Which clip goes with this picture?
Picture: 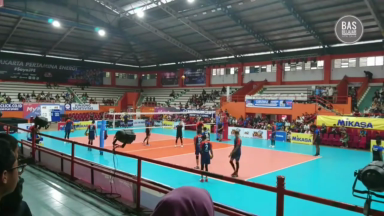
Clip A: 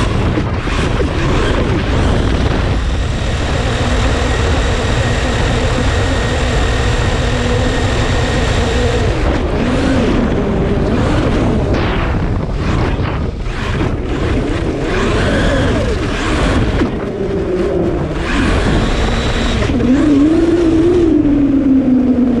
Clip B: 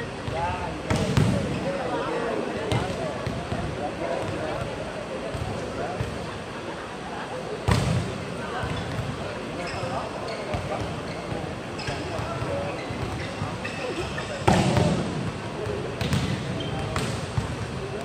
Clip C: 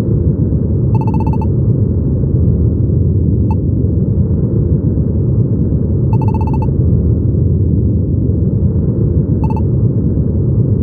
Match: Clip B